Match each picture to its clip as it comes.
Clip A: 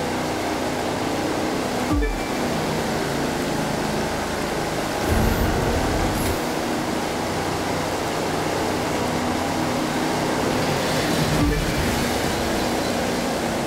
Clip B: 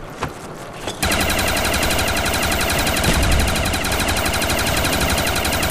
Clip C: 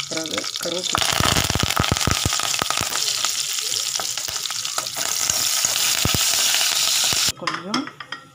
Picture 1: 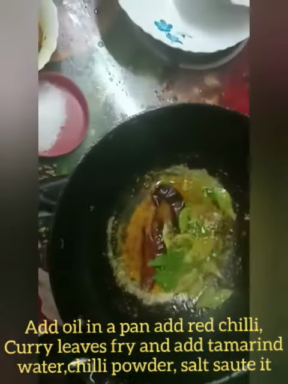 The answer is C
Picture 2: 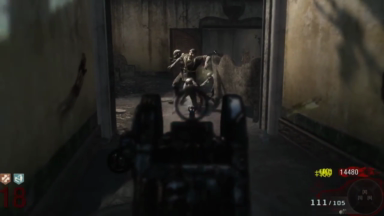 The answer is B